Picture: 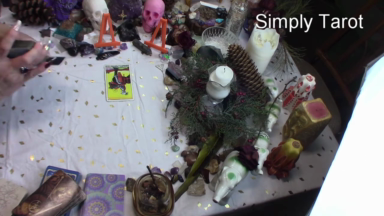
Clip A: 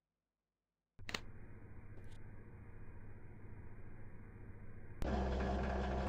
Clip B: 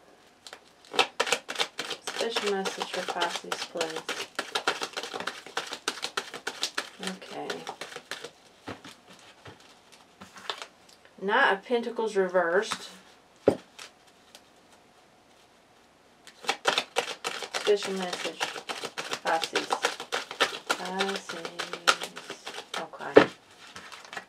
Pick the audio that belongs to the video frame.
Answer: B